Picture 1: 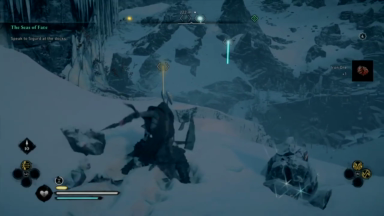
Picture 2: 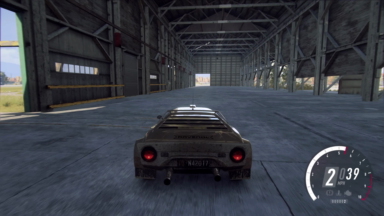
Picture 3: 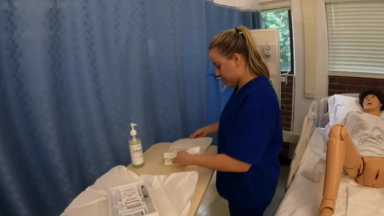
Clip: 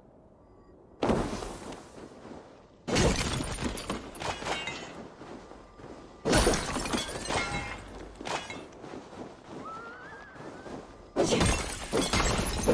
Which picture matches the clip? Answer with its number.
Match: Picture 1